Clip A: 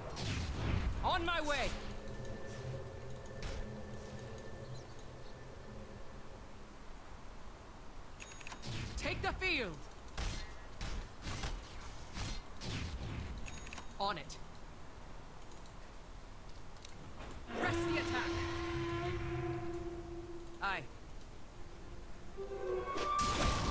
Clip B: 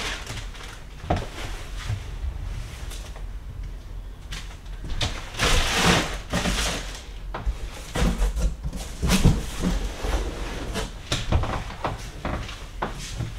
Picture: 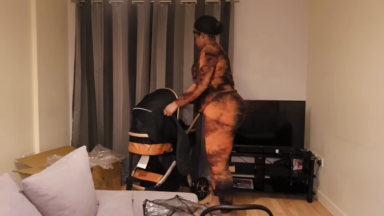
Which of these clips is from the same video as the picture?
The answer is B